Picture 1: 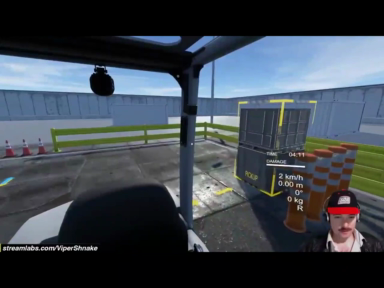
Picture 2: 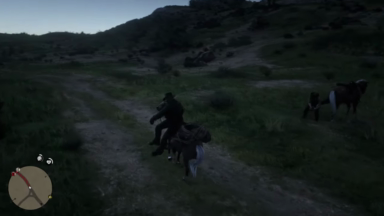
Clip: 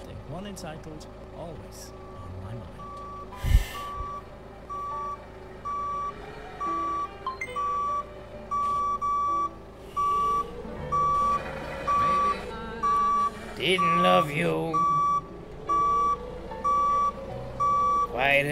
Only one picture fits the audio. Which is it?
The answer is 1